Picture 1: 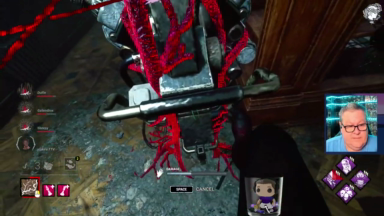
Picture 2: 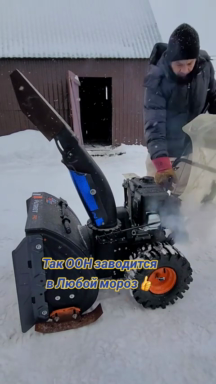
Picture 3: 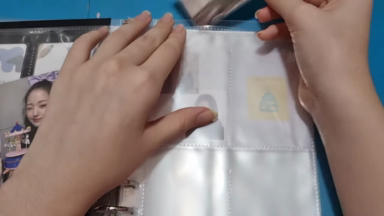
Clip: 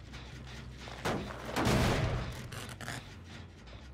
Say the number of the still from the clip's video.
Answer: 1